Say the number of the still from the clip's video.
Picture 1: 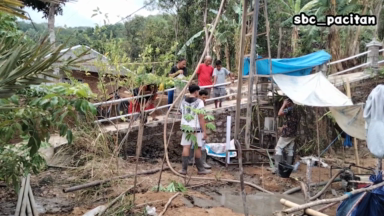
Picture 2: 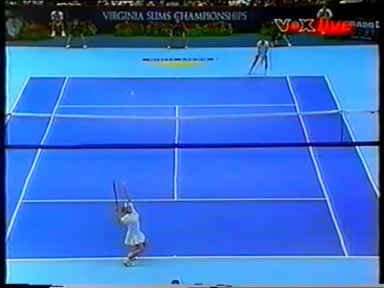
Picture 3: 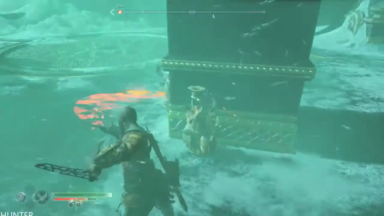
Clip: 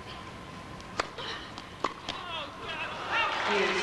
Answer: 2